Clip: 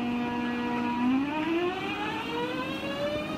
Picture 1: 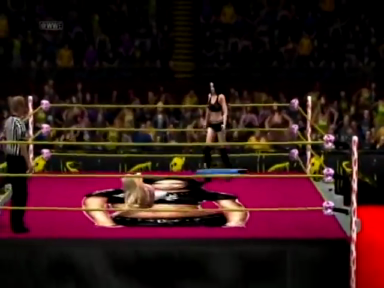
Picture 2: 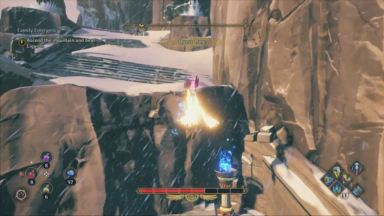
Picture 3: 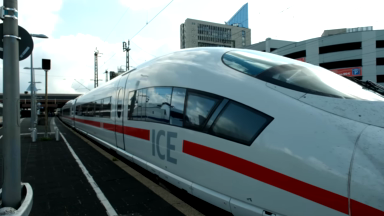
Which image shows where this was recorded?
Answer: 3